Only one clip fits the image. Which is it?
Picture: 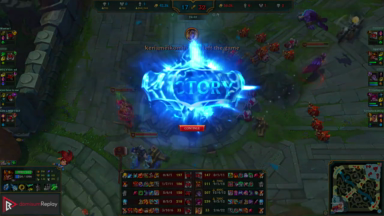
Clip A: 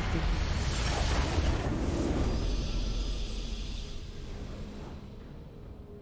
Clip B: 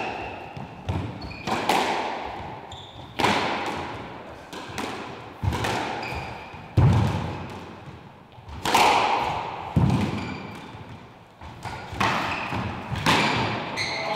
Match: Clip A